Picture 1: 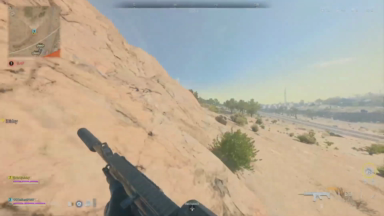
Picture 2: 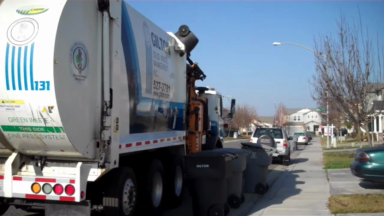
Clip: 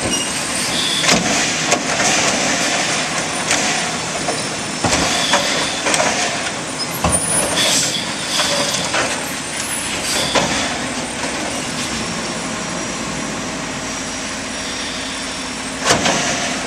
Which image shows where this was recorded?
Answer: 2